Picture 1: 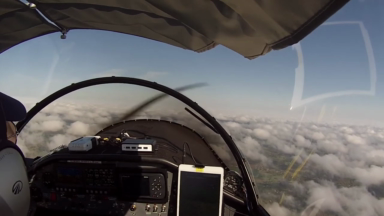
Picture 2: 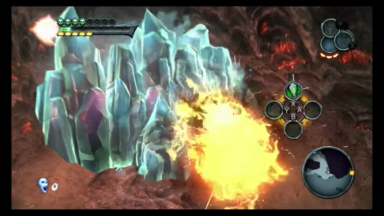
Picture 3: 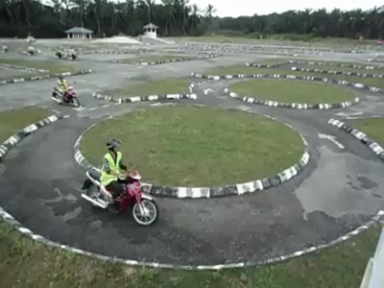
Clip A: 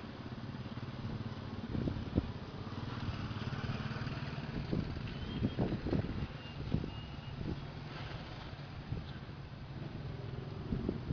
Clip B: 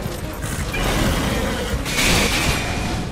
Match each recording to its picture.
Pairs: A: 3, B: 2